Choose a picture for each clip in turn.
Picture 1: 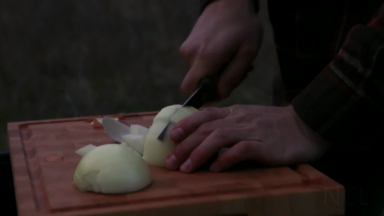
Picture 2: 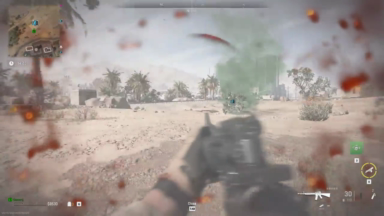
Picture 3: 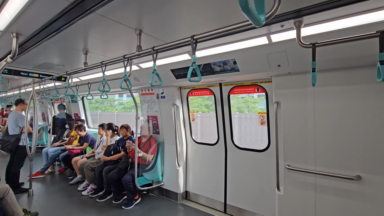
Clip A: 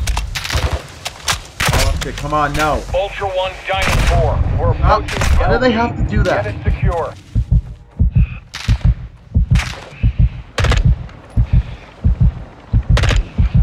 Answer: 2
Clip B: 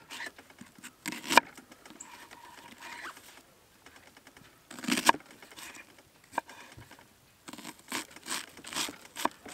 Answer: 1